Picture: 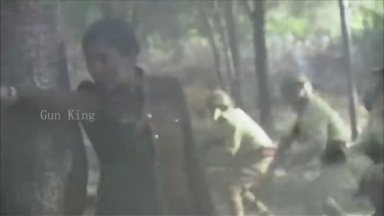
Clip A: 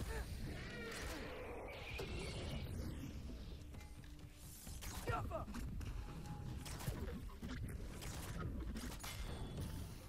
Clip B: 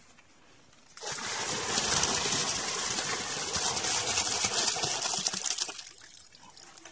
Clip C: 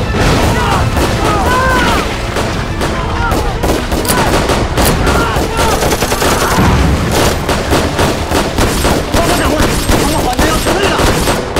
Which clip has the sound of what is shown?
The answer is C